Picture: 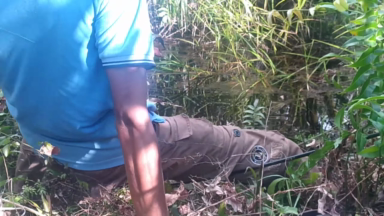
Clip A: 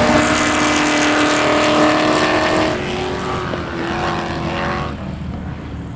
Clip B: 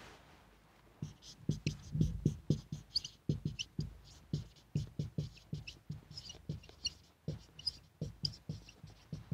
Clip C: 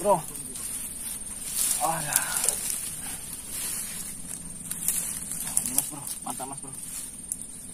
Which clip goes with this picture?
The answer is C